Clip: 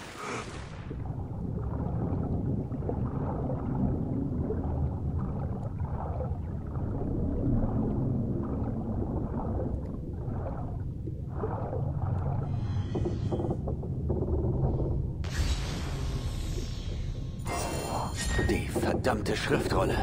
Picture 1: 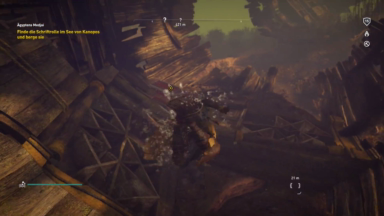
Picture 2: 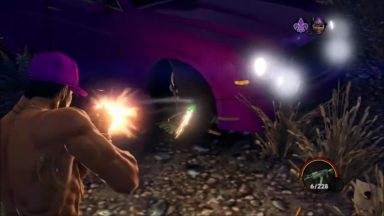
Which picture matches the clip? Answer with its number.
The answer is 1